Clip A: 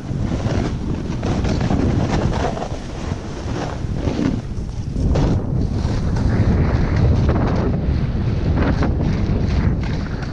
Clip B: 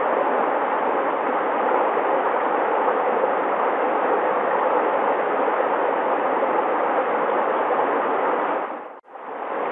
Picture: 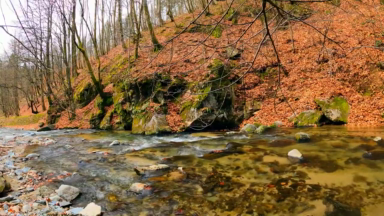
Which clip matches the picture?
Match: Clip B